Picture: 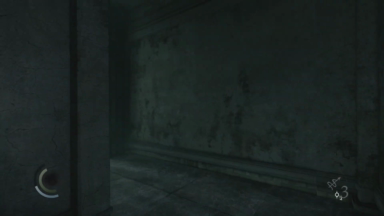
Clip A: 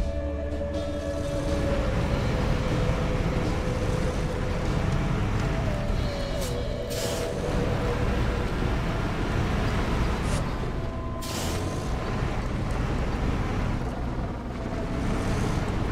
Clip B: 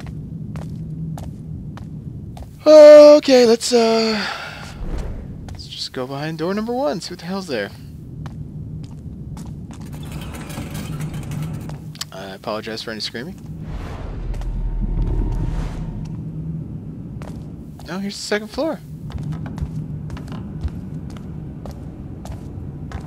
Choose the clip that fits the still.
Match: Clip B